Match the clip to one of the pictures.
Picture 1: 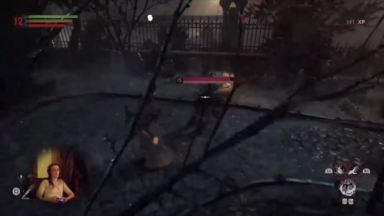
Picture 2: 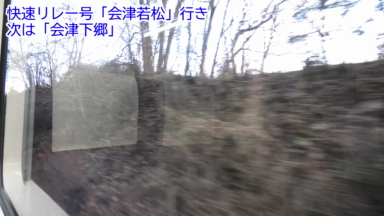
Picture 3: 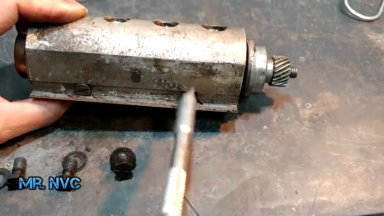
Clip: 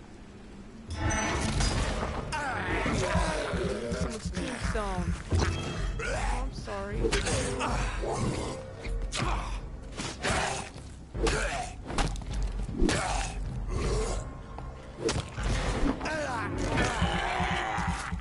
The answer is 1